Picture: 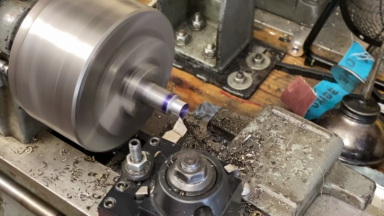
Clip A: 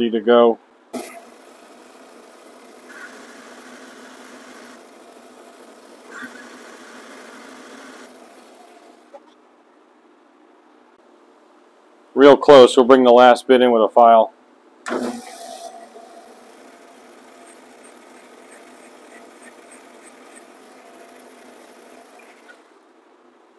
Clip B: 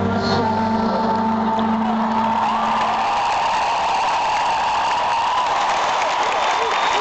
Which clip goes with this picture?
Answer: A